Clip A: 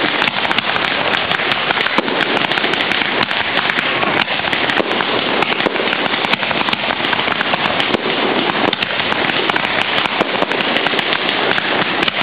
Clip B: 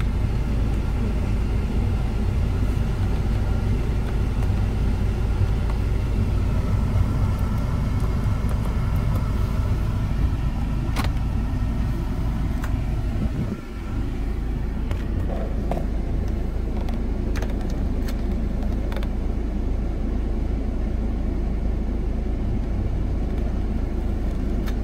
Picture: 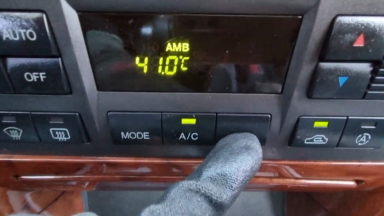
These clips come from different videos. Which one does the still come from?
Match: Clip B